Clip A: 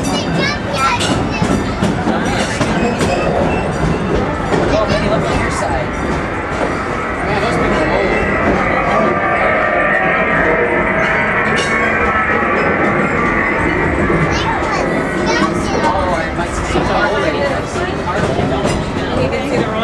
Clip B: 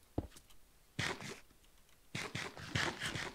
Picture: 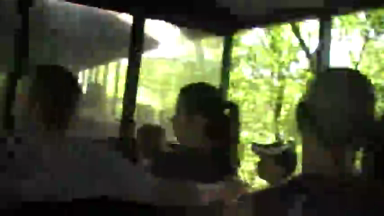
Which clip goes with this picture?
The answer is A